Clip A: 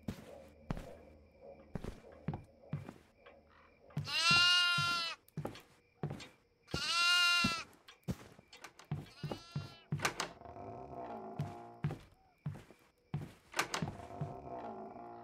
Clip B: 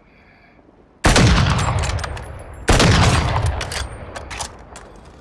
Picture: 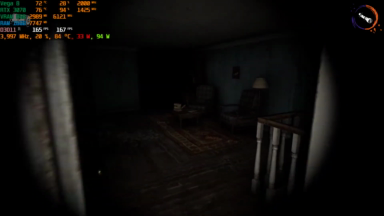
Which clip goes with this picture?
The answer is A